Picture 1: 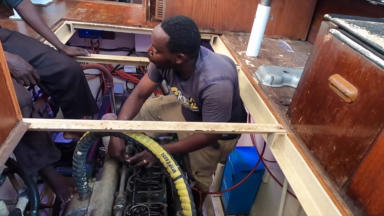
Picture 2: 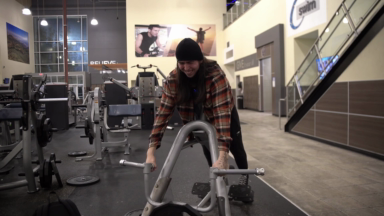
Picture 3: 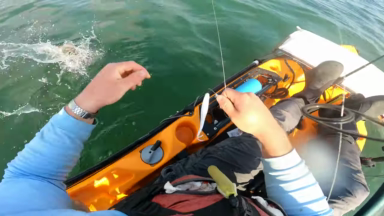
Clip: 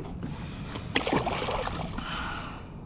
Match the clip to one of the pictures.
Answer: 3